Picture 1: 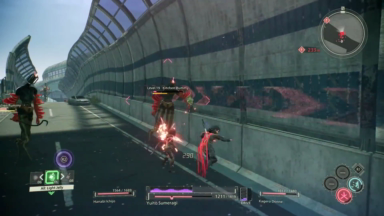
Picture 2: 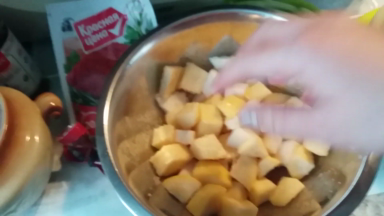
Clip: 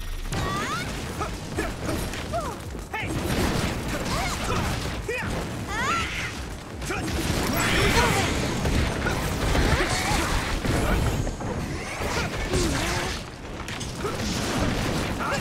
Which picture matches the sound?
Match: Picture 1